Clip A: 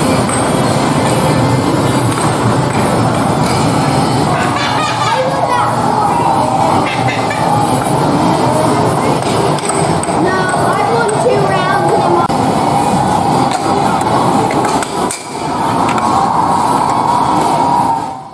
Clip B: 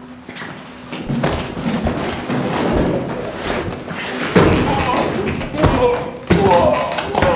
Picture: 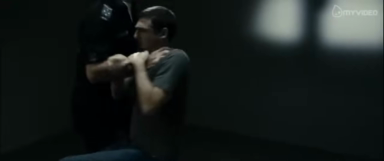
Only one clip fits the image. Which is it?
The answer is B